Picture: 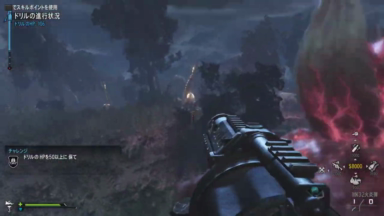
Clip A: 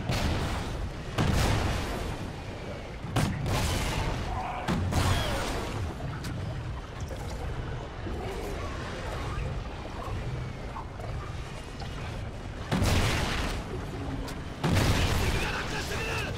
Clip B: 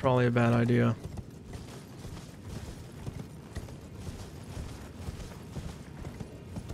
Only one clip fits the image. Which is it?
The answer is A